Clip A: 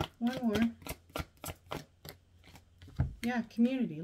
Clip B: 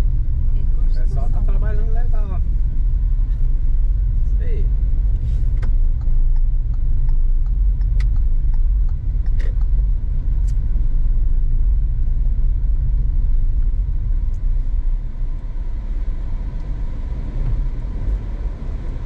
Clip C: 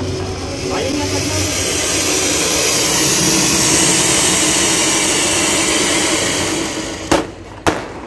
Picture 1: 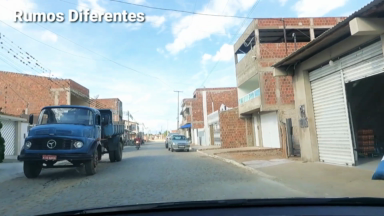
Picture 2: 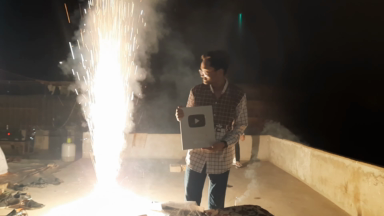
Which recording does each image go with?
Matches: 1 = B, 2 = C